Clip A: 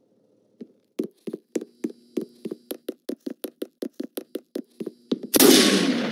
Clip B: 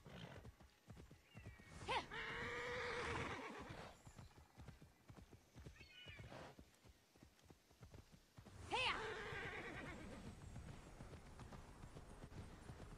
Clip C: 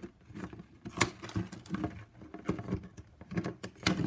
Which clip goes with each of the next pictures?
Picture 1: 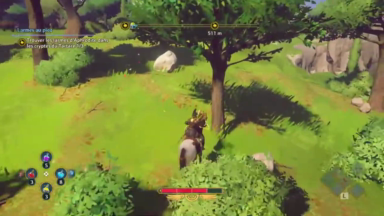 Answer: B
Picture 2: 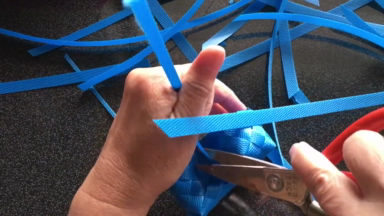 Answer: C